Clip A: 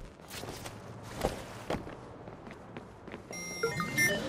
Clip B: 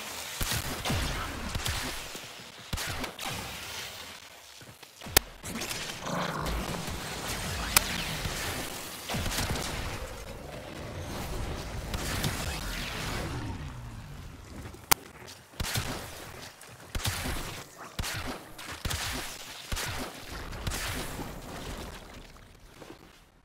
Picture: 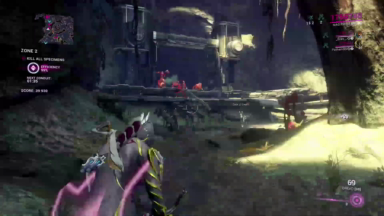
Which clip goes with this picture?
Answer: B